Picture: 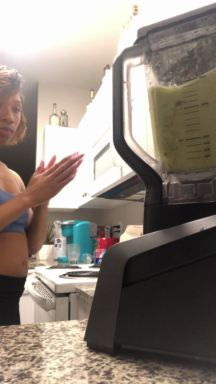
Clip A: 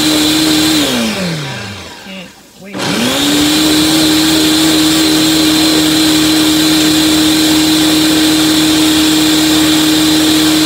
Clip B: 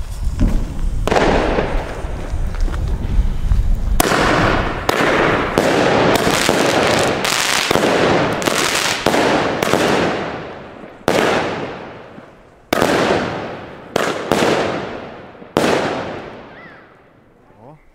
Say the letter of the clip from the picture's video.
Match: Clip A